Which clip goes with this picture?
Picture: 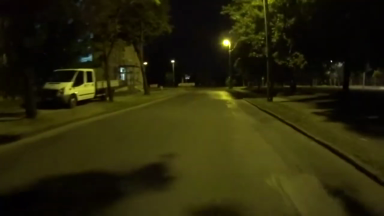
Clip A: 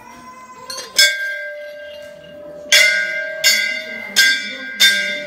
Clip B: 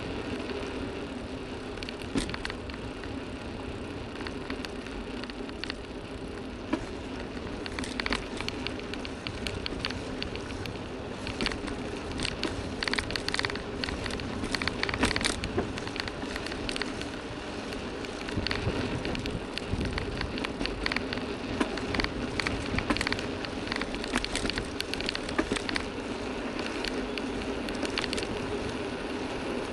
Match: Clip B